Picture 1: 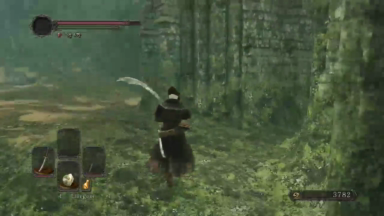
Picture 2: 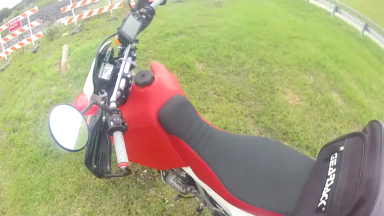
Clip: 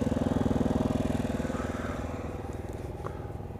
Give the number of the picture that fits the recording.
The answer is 2